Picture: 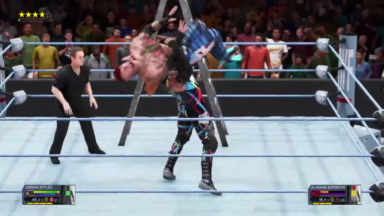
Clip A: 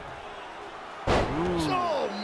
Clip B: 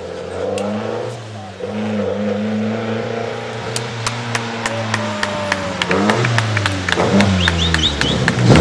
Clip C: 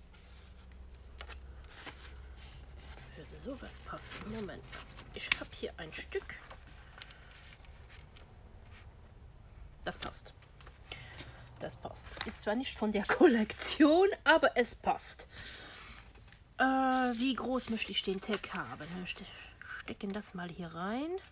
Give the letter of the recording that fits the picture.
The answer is A